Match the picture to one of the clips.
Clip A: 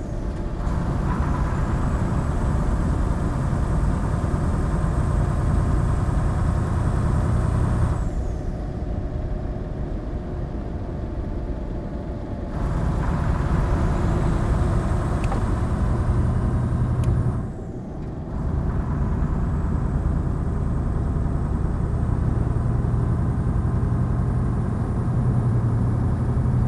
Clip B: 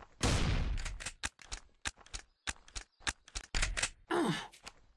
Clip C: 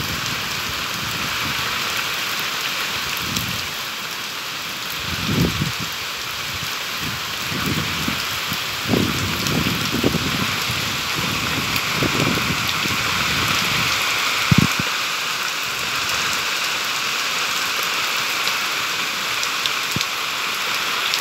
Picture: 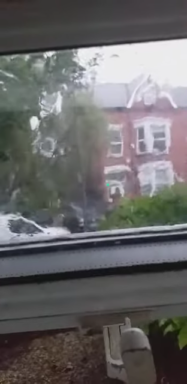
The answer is C